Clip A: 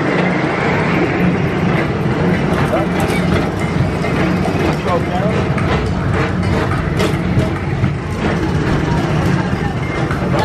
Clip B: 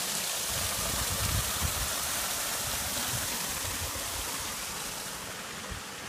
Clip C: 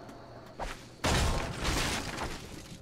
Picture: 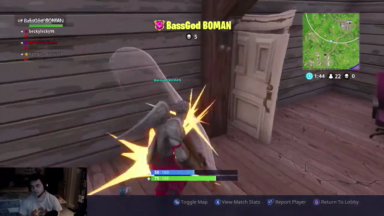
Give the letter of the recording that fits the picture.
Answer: C